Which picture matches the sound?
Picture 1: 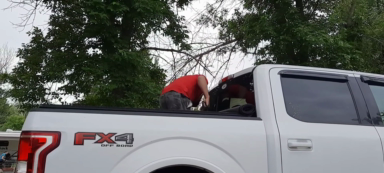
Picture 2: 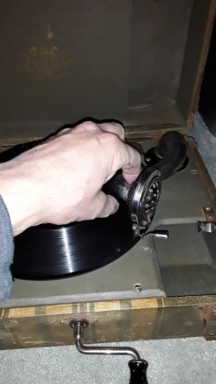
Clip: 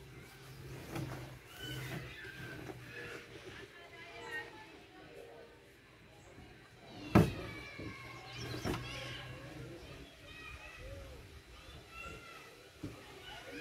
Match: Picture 1